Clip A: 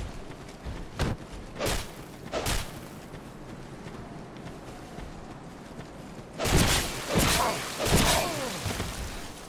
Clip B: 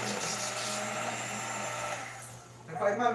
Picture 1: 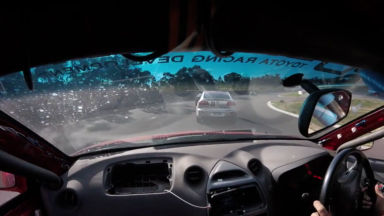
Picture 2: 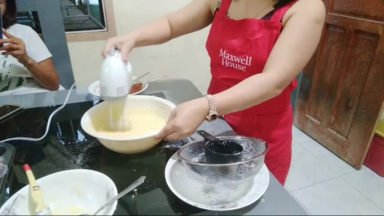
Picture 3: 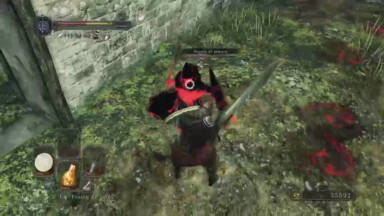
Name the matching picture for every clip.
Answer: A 3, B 2